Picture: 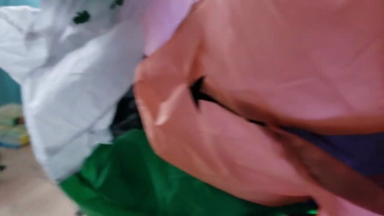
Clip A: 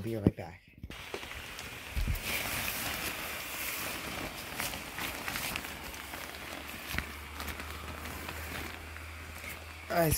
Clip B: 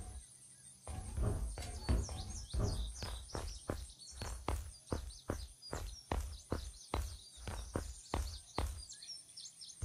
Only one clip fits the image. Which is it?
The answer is A